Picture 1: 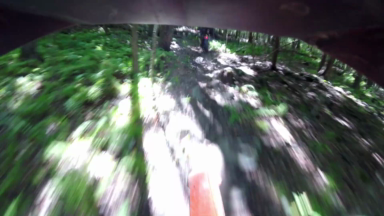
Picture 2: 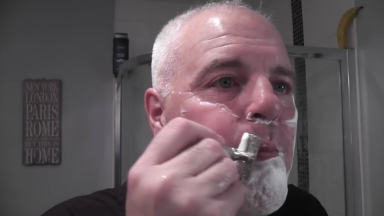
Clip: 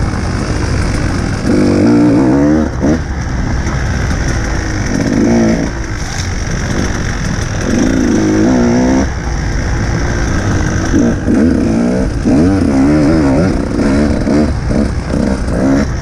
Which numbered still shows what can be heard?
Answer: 1